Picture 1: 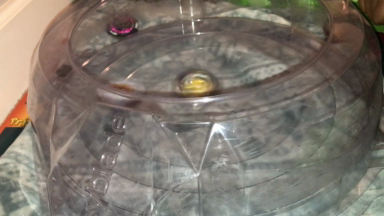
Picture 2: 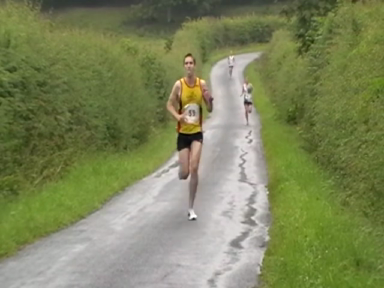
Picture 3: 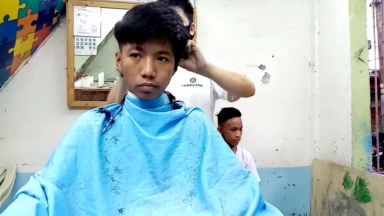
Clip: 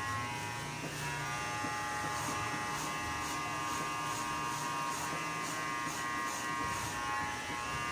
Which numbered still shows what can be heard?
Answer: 3